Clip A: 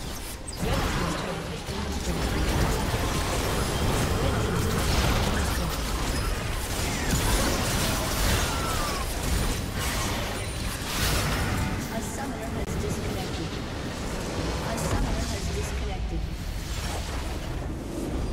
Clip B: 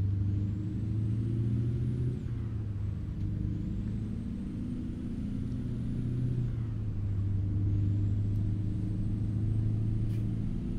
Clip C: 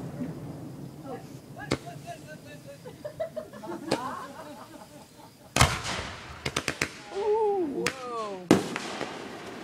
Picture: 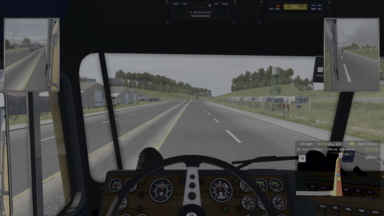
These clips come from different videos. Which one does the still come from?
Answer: B